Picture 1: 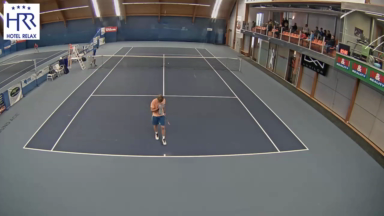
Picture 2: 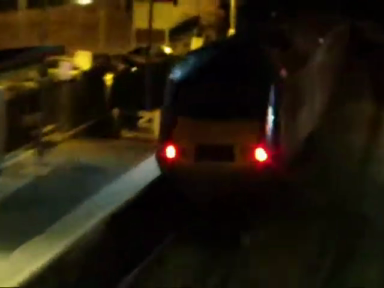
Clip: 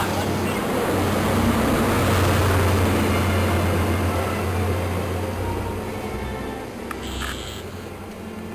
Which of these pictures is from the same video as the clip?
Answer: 2